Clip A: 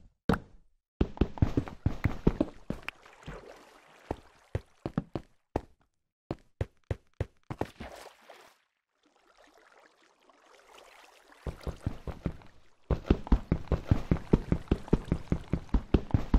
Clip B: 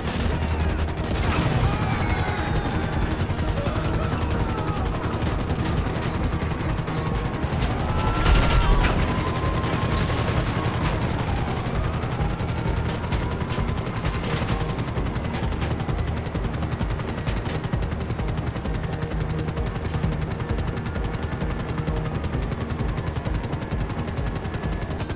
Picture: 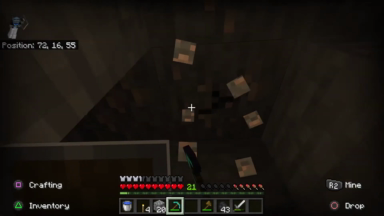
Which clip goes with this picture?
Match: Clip A